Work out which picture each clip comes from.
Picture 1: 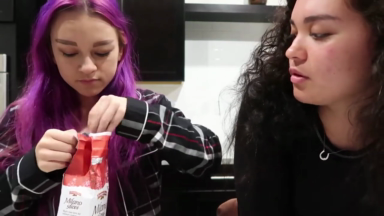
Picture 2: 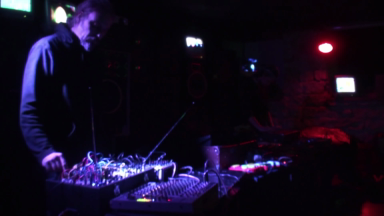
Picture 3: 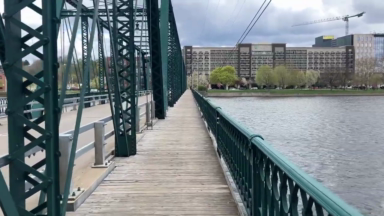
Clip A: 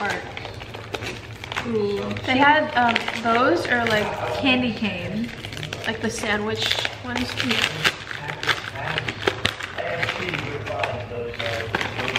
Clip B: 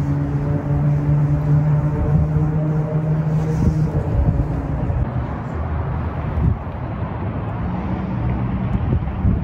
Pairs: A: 1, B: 3